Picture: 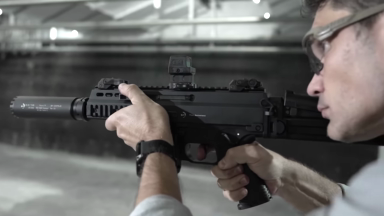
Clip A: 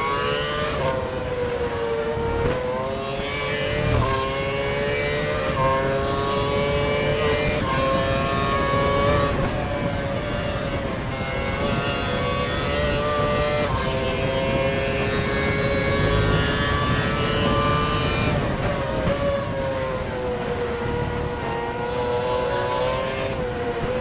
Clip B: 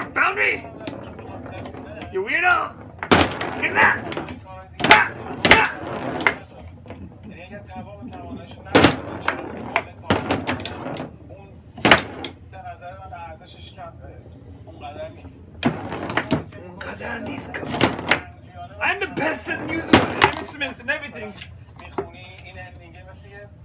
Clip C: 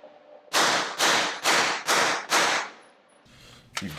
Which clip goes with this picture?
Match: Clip C